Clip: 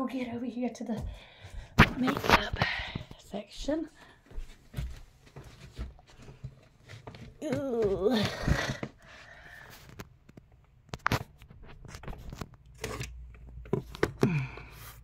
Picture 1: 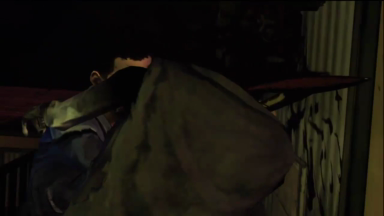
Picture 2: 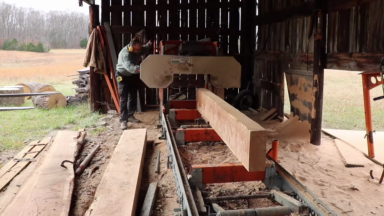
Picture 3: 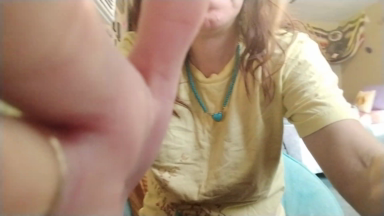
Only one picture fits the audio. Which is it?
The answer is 3